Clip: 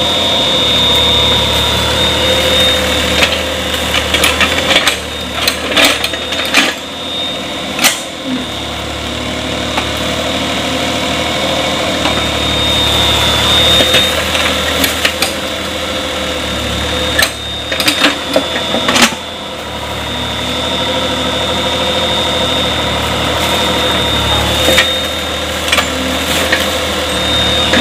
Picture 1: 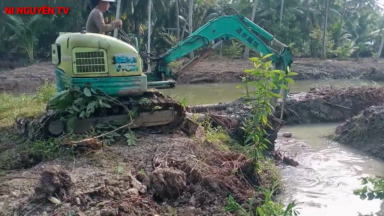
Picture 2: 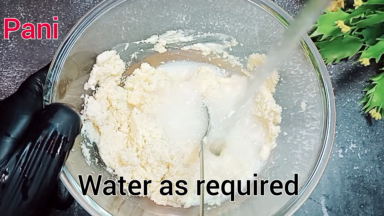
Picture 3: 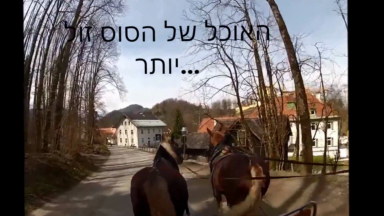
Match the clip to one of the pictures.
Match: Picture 1